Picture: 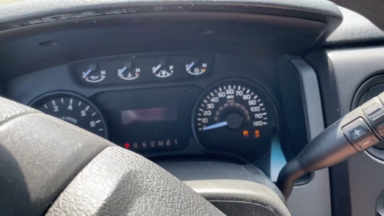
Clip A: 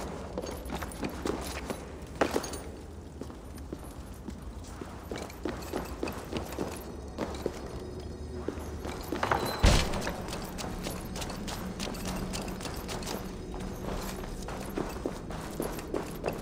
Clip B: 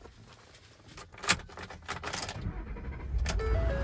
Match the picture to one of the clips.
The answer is B